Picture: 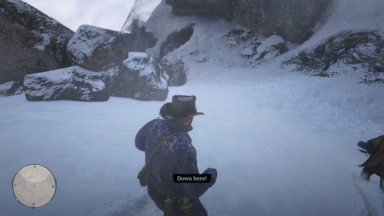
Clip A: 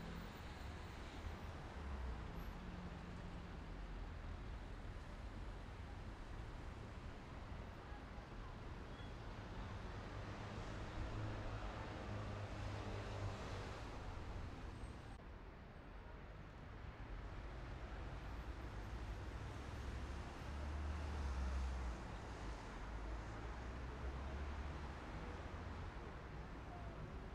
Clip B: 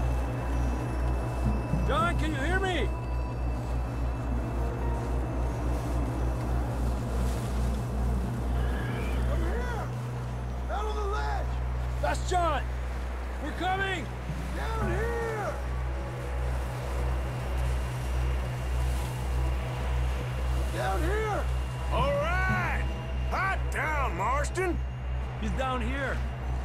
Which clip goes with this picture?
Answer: B